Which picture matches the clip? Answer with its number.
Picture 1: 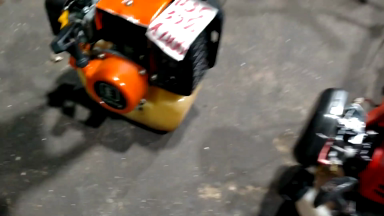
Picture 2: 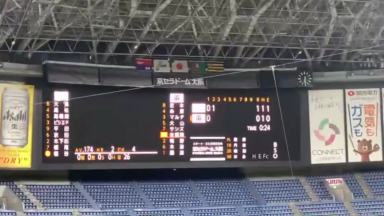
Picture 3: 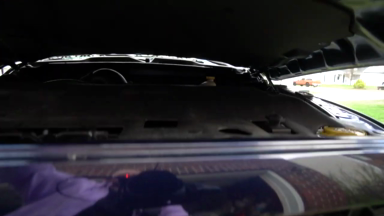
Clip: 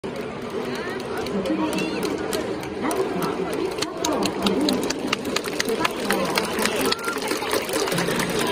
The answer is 2